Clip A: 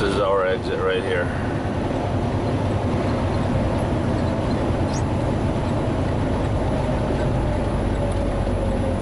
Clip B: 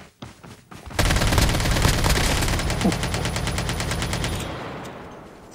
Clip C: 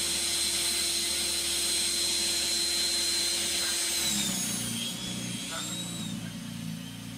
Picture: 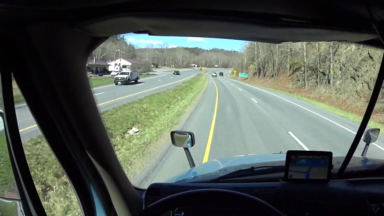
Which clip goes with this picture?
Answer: A